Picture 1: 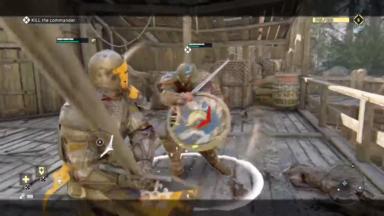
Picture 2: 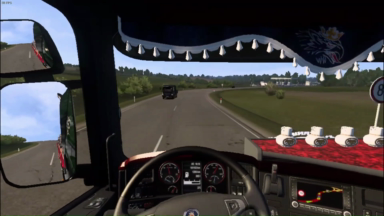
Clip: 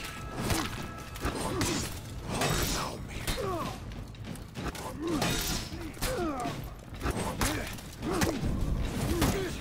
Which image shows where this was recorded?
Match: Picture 1